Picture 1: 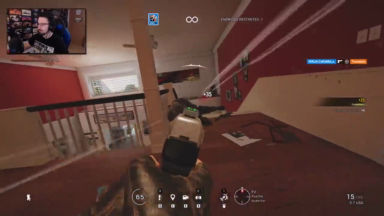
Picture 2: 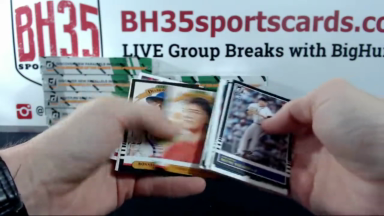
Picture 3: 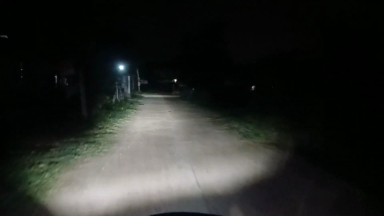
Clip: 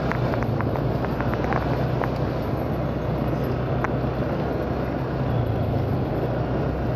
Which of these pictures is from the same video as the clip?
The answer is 3